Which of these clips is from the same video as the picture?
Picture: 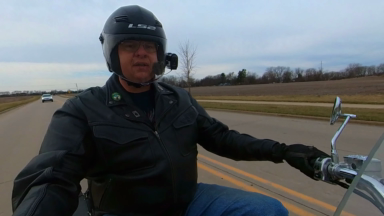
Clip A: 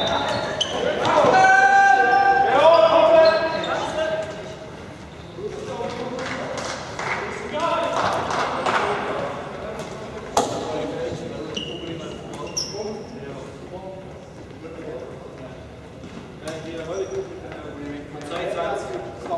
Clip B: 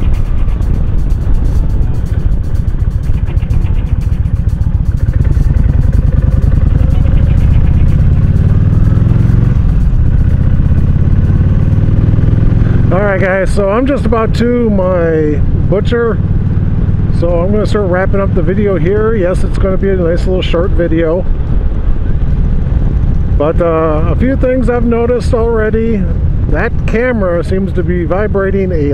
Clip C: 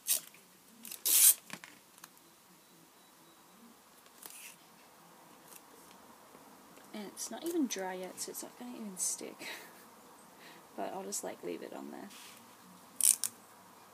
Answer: B